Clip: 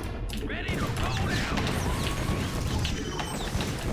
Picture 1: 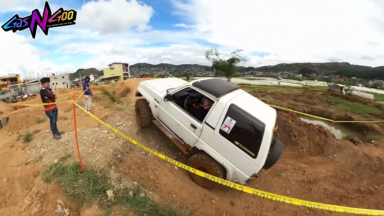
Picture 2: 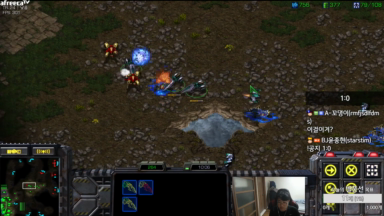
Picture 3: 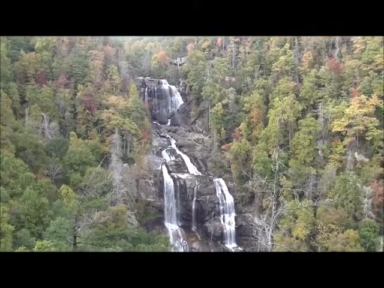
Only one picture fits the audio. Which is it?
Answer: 2